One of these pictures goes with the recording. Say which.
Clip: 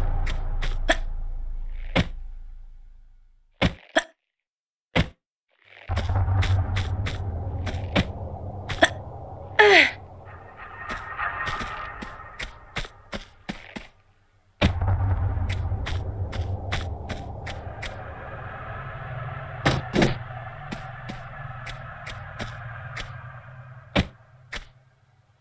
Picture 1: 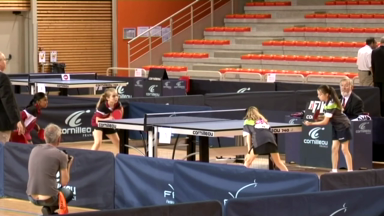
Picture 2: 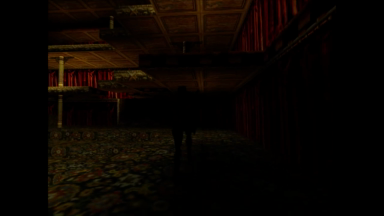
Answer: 2